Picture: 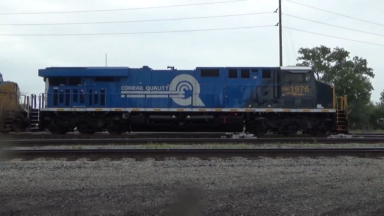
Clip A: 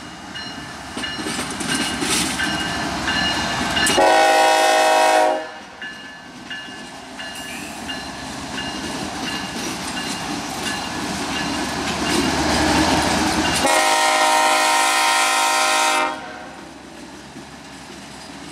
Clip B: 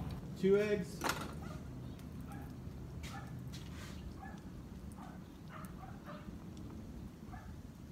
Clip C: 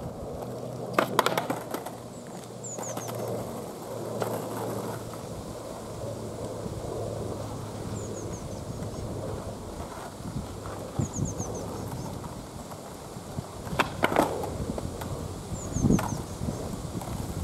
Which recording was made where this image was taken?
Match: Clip A